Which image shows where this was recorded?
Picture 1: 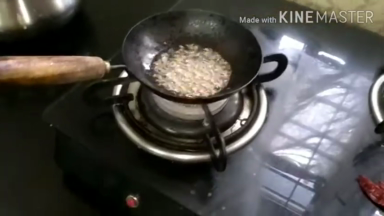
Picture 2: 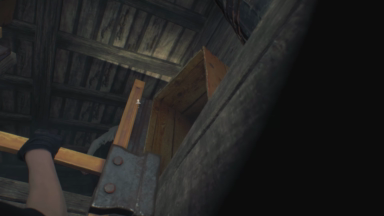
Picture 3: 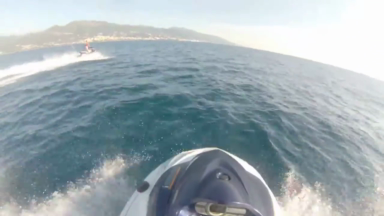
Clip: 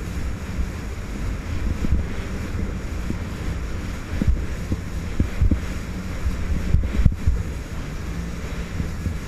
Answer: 3